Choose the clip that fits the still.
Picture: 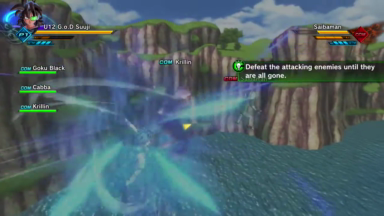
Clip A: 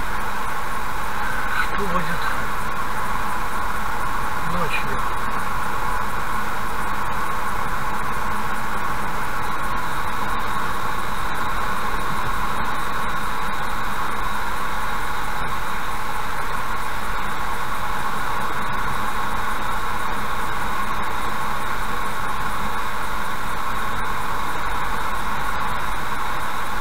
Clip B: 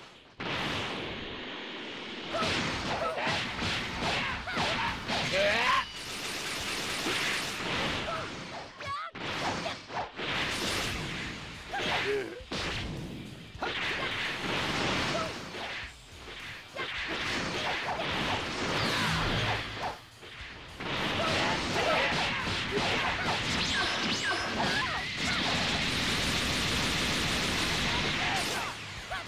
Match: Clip B